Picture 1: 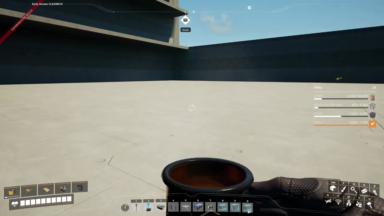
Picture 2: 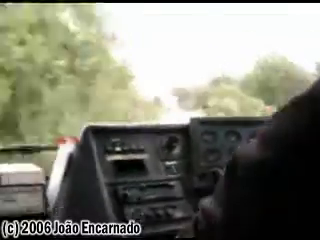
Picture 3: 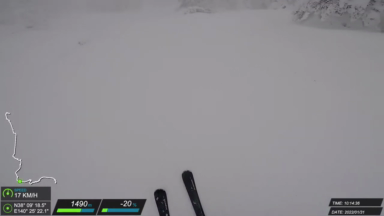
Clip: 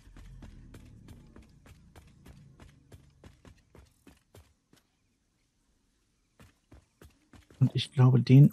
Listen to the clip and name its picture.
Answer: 1